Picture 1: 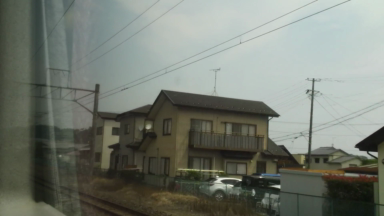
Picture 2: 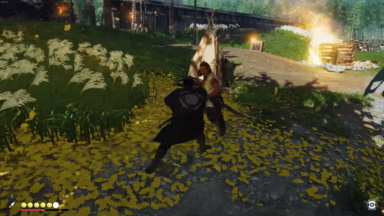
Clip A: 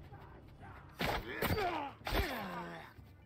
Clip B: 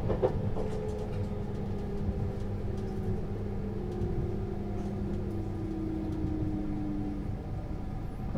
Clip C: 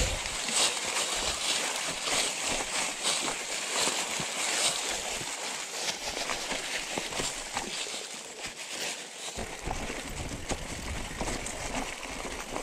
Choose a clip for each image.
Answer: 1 B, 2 A